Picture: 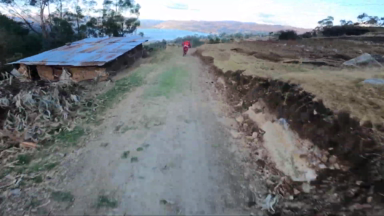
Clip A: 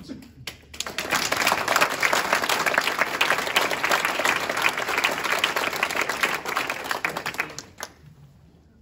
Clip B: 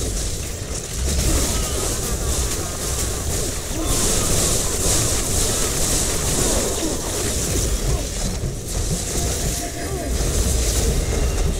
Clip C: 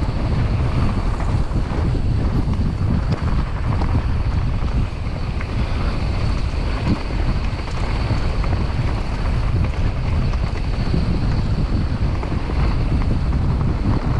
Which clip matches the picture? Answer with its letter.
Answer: C